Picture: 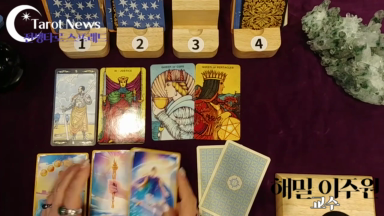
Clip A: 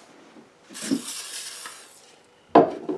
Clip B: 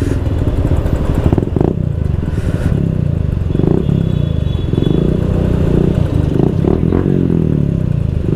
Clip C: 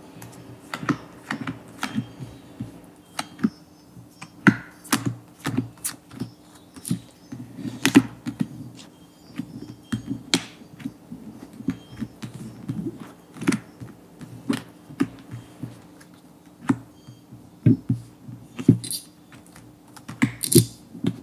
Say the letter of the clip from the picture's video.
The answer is C